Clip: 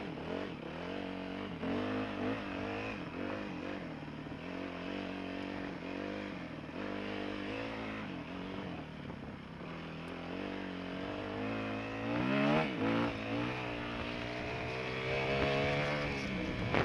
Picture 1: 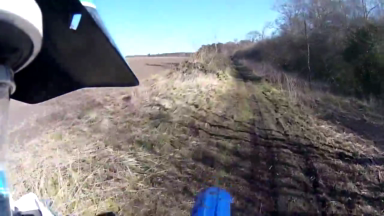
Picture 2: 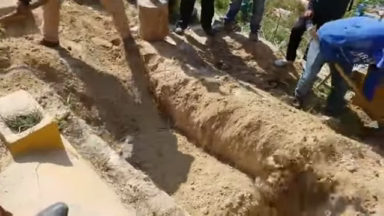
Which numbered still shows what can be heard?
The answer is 1